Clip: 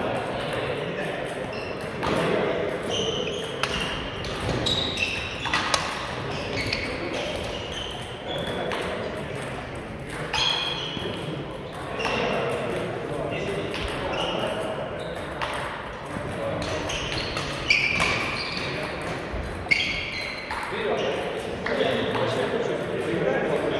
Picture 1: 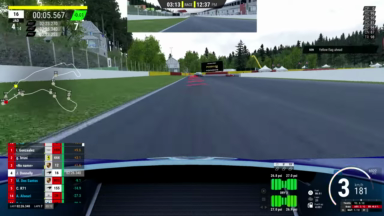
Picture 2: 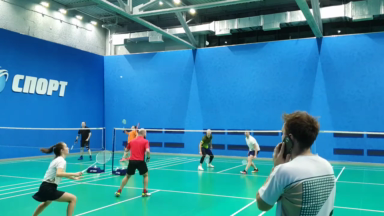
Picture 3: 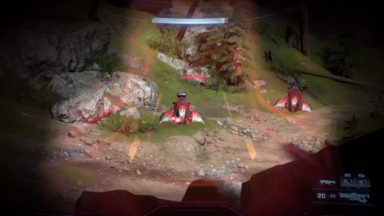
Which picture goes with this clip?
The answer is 2